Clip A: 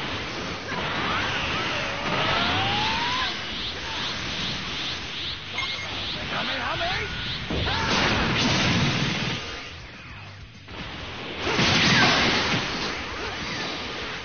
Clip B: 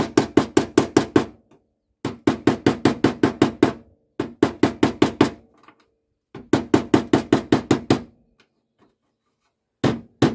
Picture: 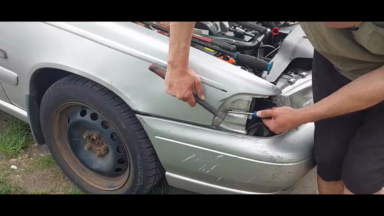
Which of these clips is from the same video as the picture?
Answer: B